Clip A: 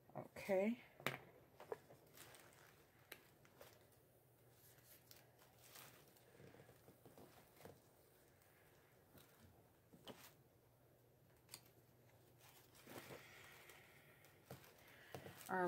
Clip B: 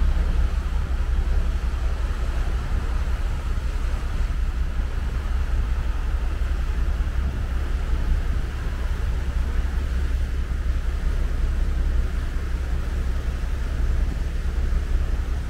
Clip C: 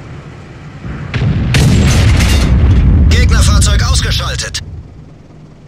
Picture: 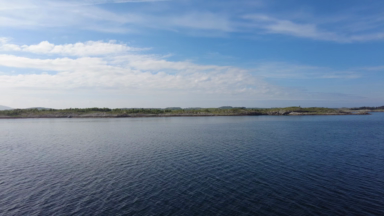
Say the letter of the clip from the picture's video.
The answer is B